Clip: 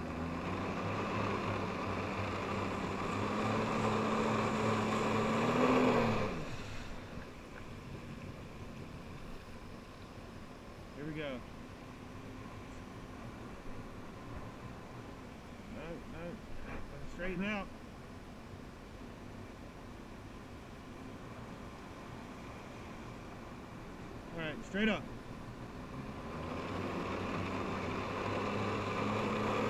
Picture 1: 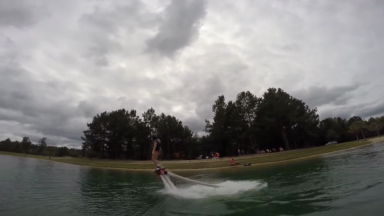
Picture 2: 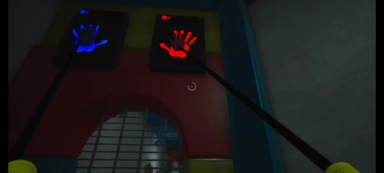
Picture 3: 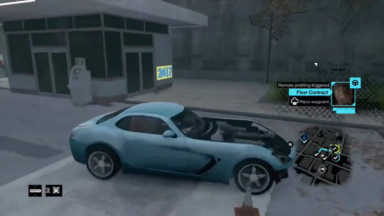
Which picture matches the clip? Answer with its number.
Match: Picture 1